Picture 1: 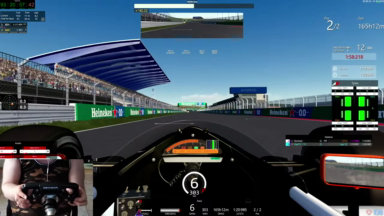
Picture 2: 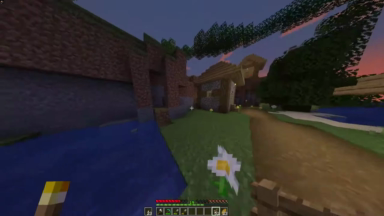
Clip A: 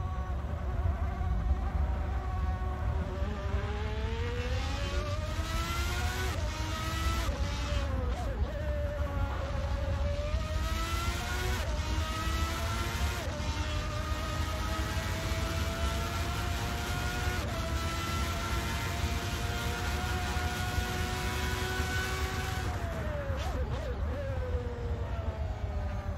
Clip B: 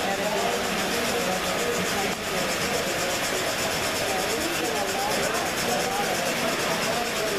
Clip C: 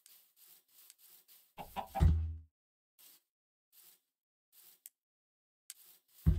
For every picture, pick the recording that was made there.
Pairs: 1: A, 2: C